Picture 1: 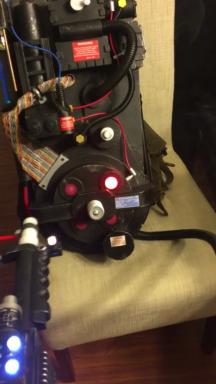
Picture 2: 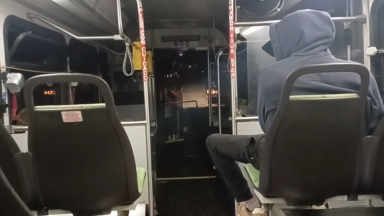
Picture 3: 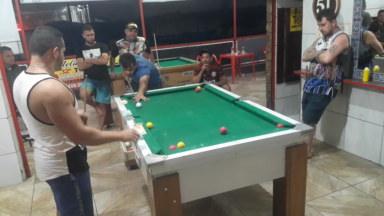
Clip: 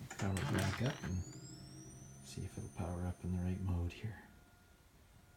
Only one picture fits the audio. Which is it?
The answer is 1